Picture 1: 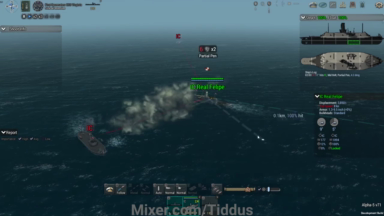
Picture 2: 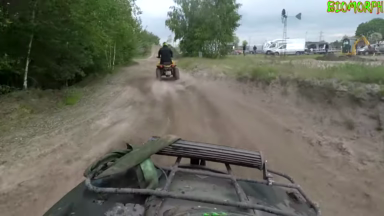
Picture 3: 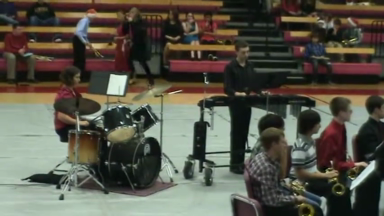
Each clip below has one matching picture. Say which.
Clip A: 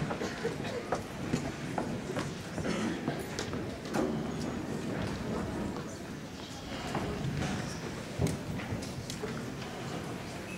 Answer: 3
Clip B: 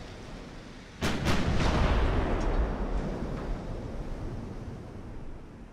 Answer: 1